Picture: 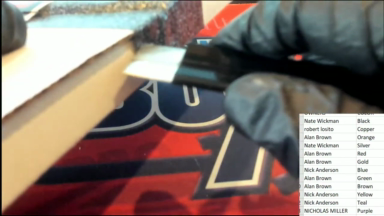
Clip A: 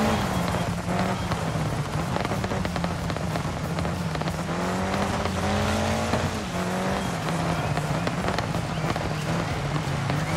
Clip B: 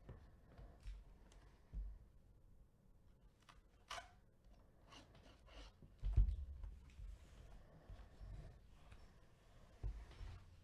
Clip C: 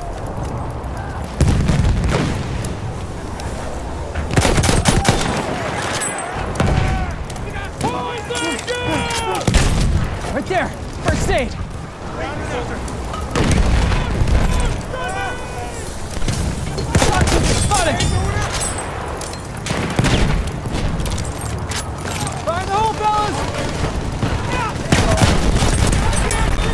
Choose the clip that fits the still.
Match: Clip B